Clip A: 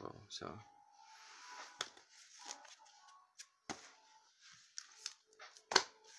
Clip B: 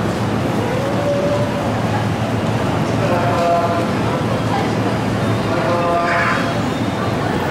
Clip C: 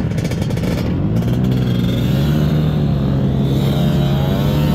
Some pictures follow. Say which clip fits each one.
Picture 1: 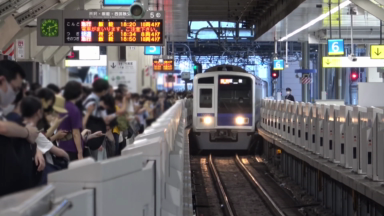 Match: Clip B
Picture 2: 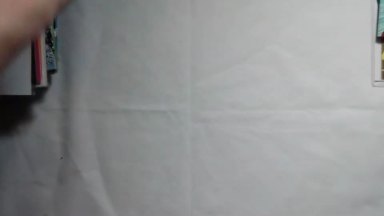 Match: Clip A